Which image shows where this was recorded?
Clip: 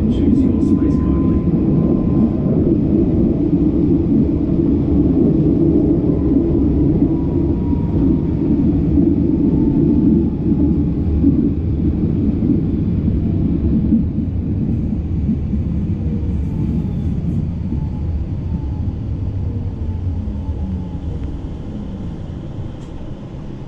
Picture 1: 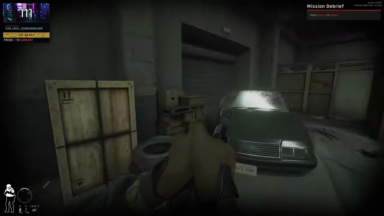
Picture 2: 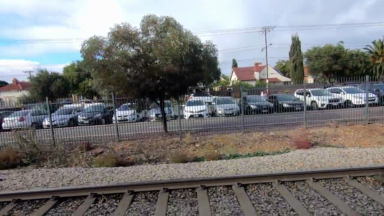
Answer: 2